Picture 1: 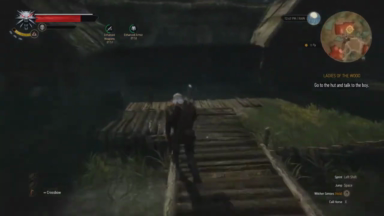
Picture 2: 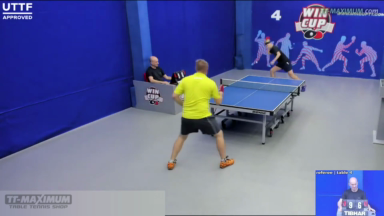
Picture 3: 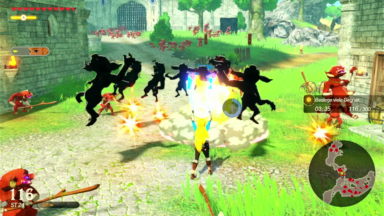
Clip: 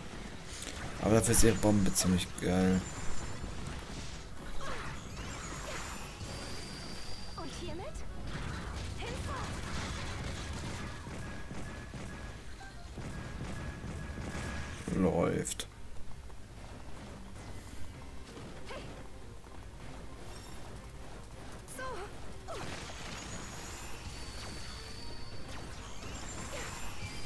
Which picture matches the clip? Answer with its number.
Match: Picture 3